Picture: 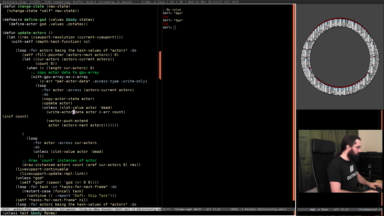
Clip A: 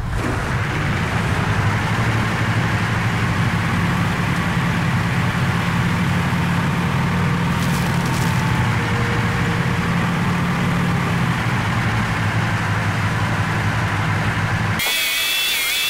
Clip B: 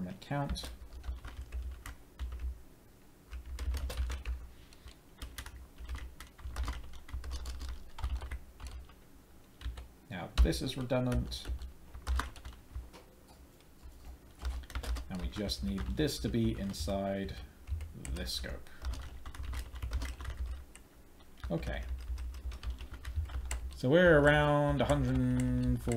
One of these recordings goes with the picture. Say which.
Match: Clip B